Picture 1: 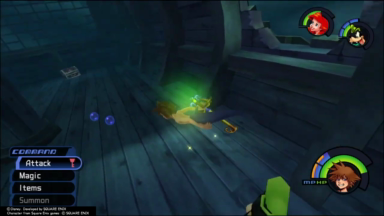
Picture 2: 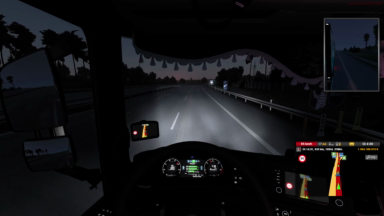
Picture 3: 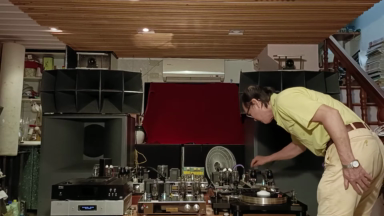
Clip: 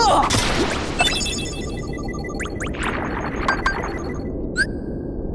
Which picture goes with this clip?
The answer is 1